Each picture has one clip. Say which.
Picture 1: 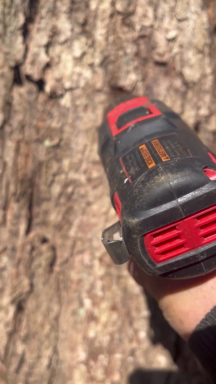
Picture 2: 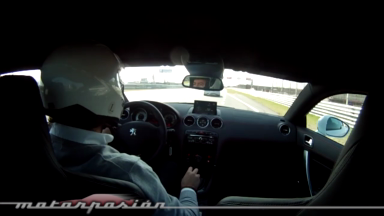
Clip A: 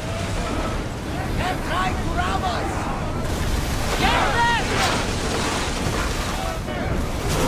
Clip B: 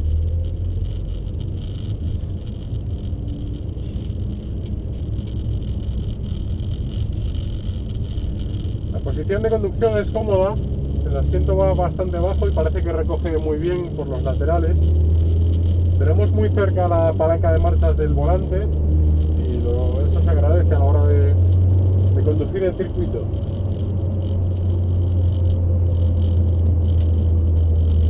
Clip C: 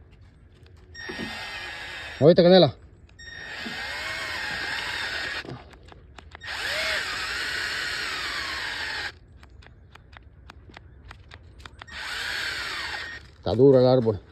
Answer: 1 C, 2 B